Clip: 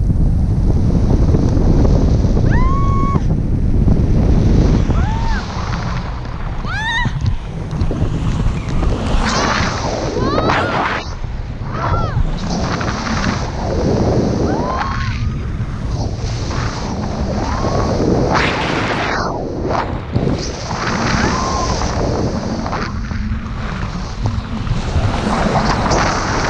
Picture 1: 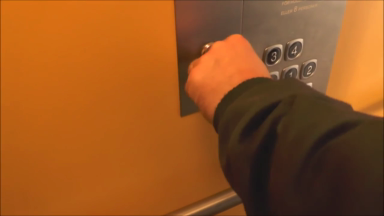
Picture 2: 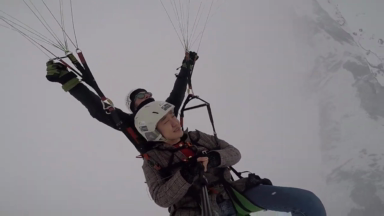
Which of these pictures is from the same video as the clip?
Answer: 2